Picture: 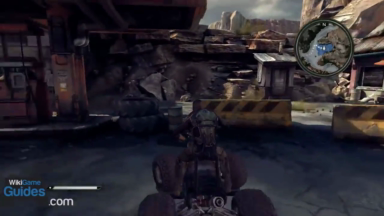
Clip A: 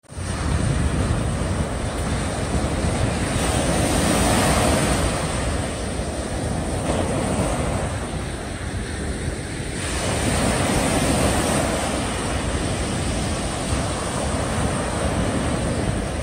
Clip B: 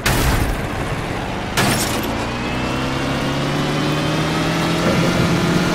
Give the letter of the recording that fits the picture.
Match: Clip B